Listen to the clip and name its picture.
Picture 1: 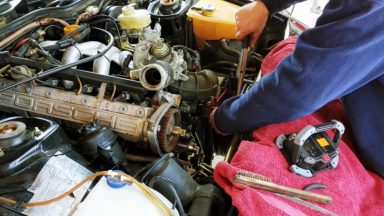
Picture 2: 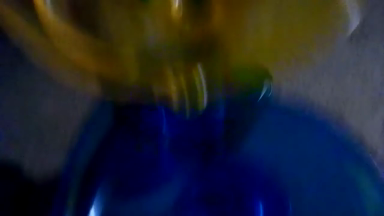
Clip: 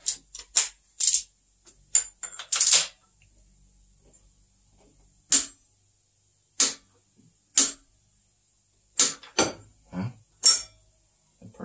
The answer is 1